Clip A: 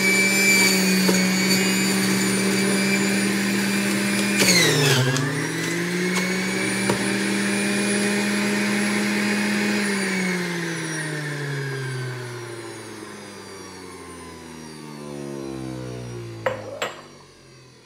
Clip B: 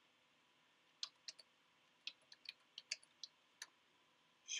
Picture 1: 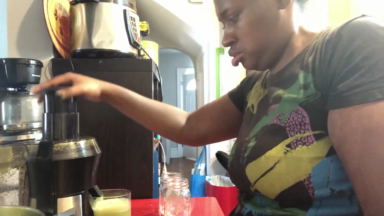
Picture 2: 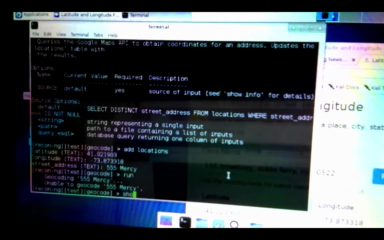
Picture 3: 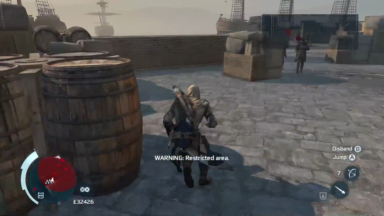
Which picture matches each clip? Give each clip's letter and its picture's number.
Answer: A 1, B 2